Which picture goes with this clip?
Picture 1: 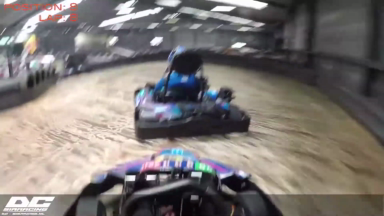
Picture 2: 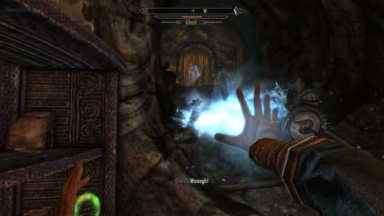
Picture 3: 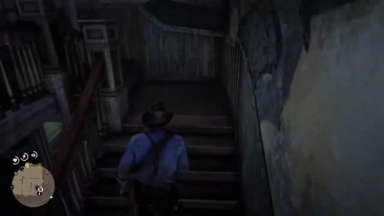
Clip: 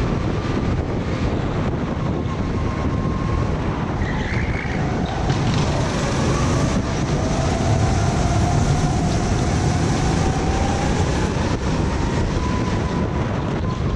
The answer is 1